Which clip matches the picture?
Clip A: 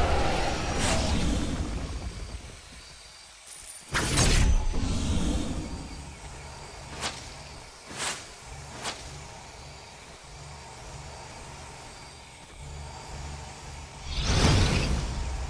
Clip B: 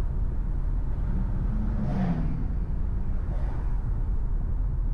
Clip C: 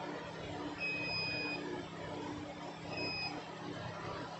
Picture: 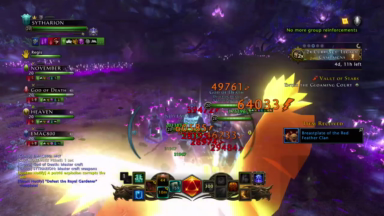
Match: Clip A